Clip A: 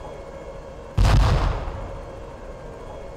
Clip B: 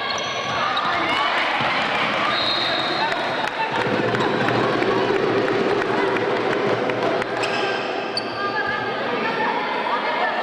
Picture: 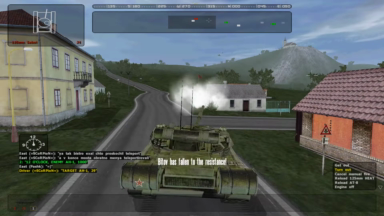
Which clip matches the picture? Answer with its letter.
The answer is A